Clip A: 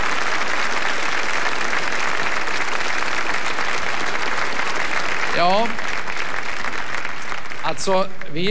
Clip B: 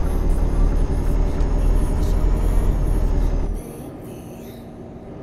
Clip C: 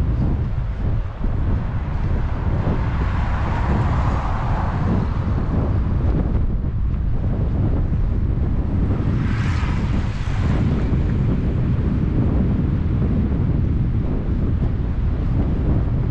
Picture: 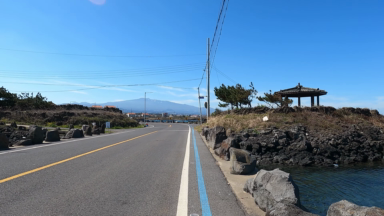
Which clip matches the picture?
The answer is C